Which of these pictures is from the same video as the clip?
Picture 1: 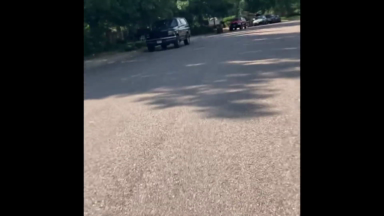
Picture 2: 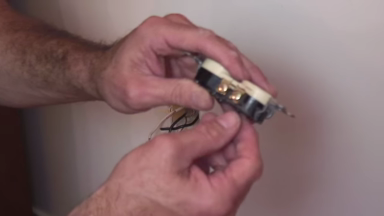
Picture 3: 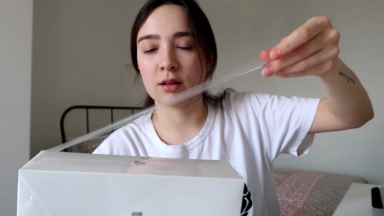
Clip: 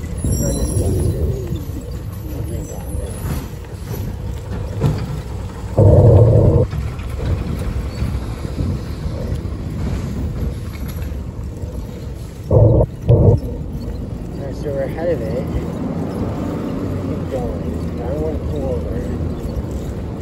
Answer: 1